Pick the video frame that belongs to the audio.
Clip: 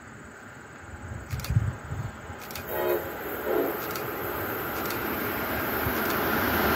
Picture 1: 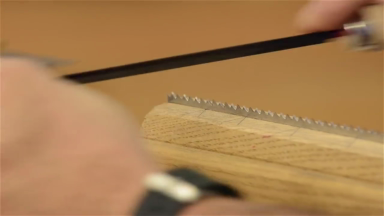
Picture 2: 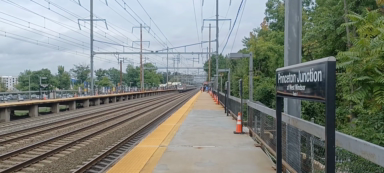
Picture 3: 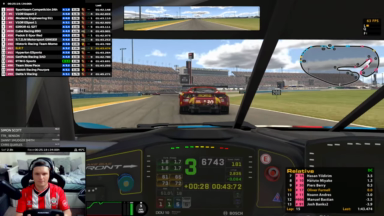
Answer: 2